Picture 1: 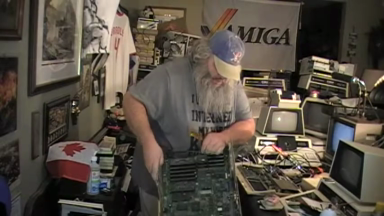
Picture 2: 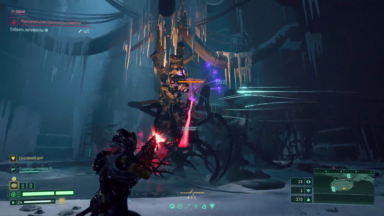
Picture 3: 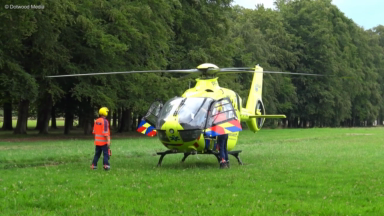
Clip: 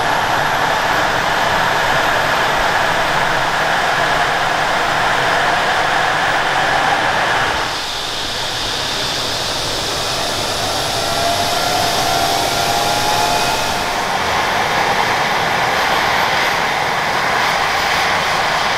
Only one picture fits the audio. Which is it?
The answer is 3